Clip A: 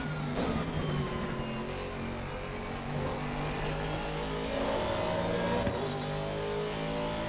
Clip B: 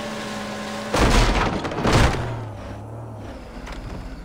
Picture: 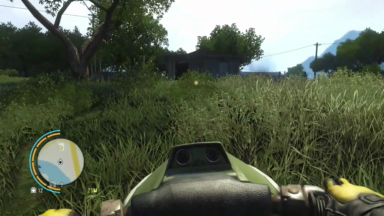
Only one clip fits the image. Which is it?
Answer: B